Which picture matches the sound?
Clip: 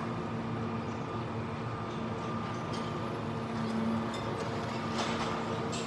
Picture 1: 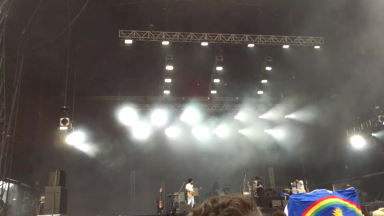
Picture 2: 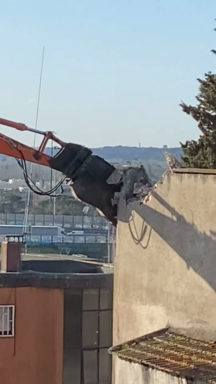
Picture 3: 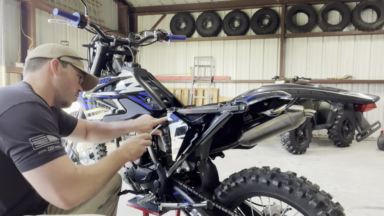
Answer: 2